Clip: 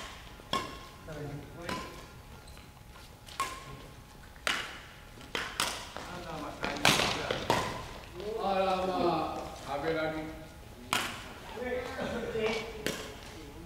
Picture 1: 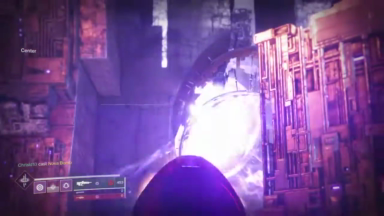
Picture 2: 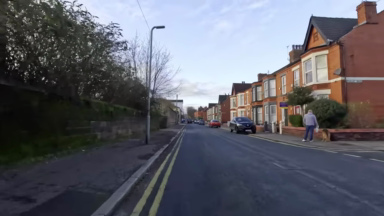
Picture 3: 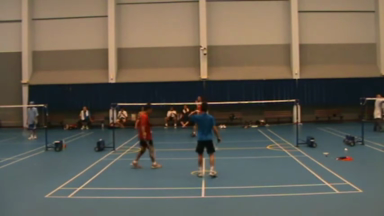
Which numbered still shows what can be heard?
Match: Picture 3